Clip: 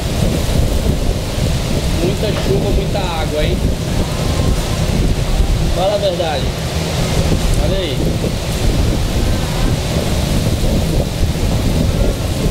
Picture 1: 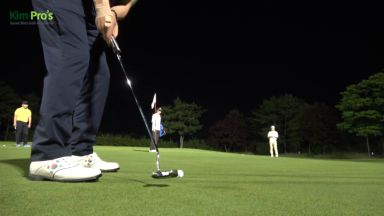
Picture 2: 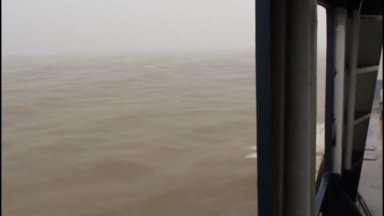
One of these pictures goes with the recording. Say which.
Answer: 2